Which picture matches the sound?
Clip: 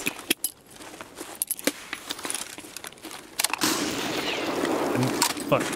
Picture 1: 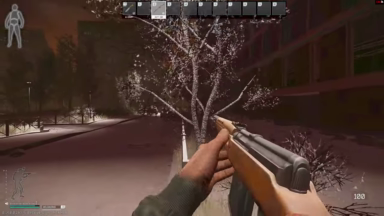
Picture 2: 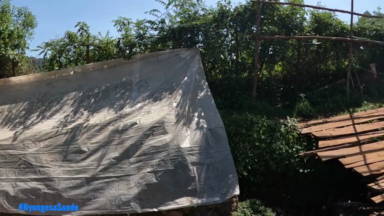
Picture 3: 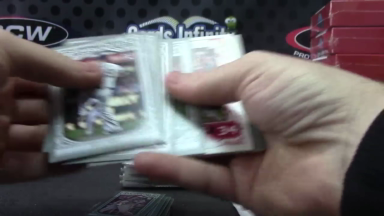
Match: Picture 1